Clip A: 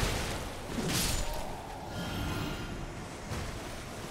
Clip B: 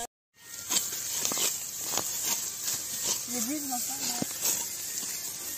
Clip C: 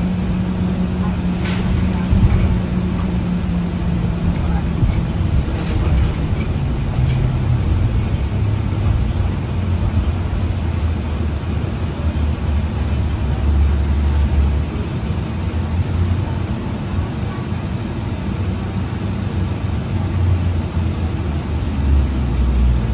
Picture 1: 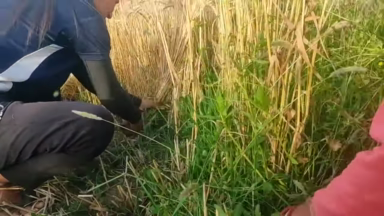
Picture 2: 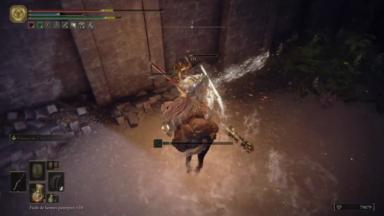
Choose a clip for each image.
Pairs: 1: B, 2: A